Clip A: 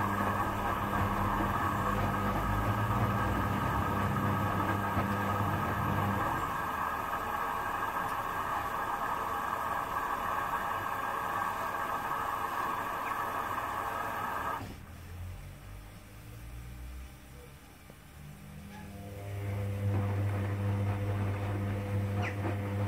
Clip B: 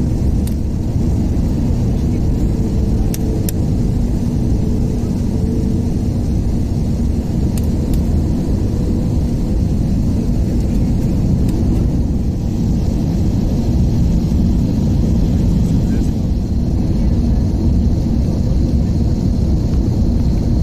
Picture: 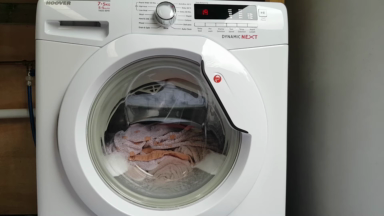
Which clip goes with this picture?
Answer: A